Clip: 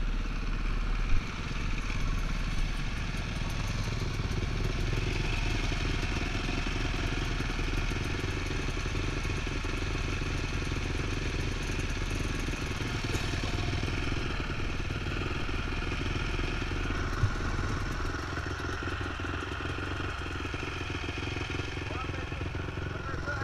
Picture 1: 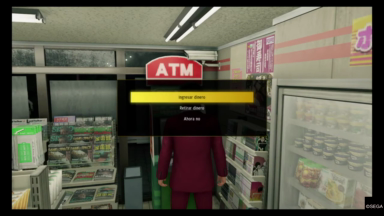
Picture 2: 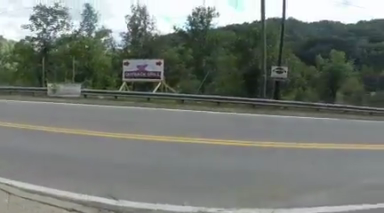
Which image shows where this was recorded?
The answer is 2